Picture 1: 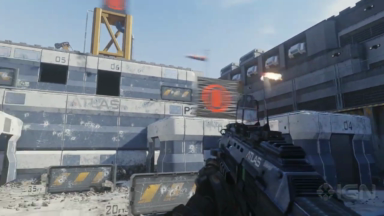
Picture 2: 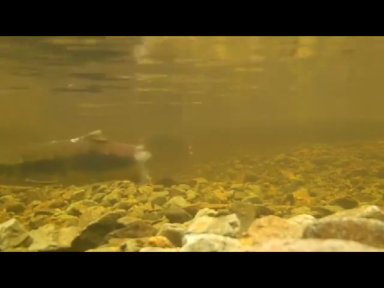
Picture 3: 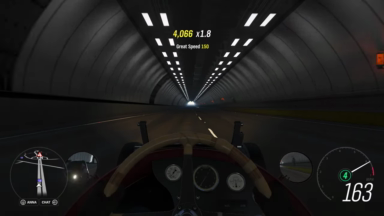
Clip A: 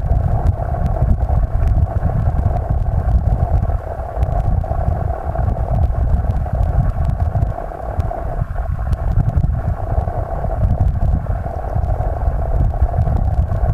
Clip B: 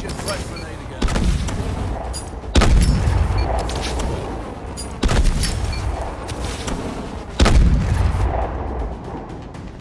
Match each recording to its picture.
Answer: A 2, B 1